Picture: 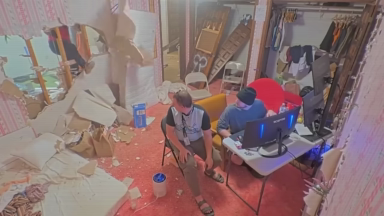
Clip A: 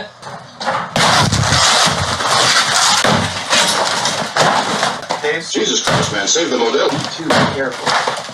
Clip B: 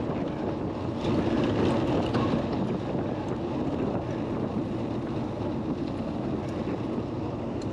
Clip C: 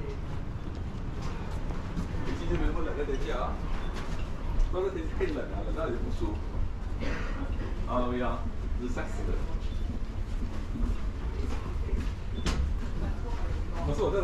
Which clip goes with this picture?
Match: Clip A